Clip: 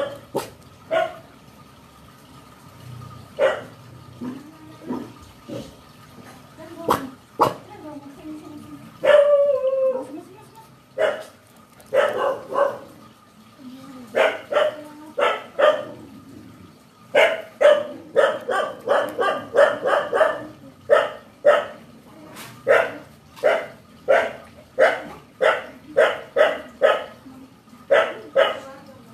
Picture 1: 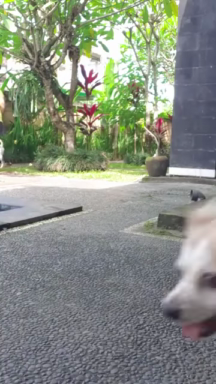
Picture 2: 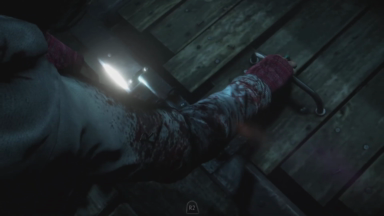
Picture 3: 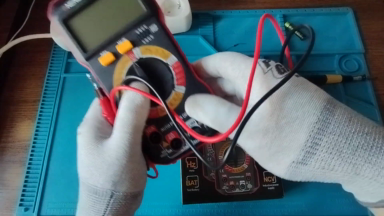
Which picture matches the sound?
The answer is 1